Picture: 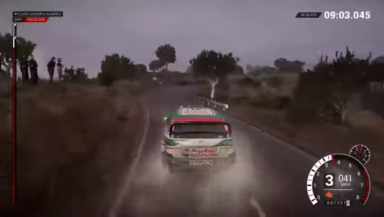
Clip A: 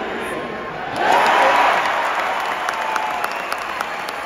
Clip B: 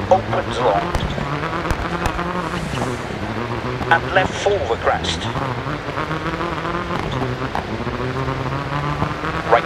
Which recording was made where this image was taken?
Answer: B